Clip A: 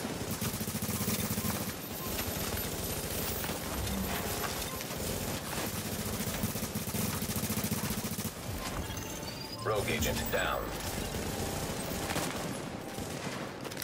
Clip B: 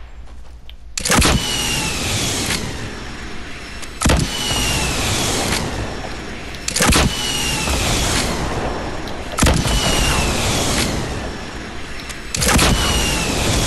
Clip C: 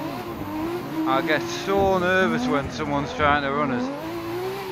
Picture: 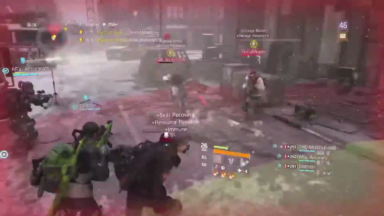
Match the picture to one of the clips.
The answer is A